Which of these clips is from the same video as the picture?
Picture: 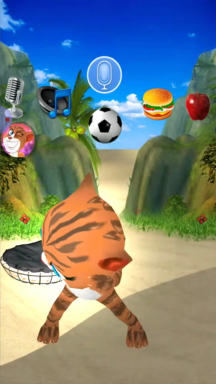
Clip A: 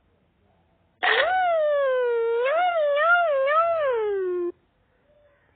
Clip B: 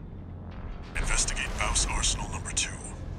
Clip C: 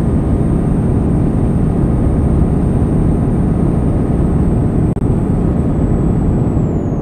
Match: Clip A